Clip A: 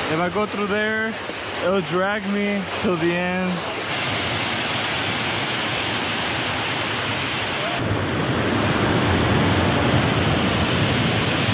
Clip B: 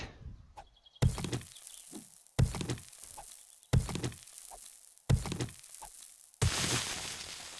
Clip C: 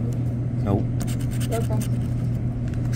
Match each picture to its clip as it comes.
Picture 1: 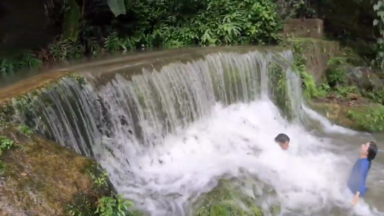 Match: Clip A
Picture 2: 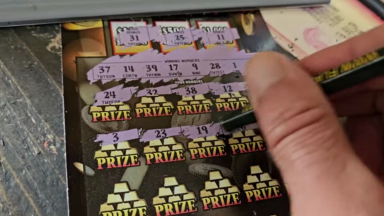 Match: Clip C